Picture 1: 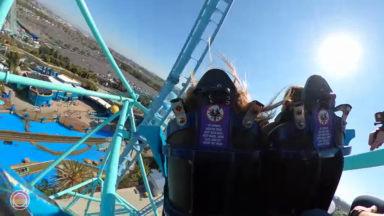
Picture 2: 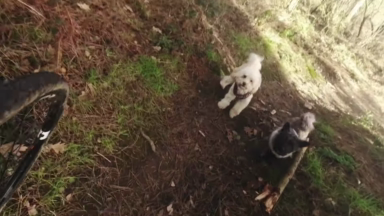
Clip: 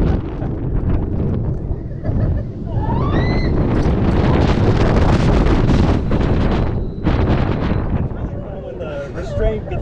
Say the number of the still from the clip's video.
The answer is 1